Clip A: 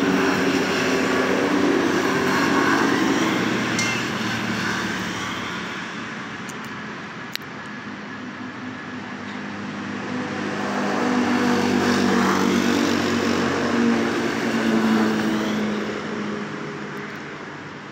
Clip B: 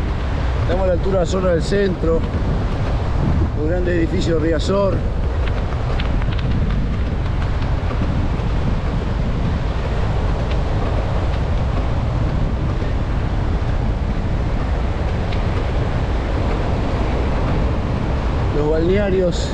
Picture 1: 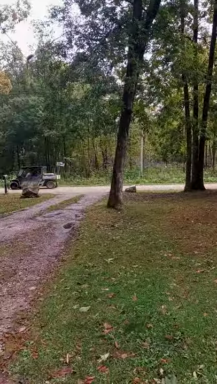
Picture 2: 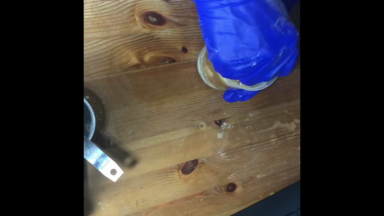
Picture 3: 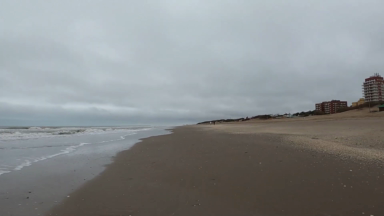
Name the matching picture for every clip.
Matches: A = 1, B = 3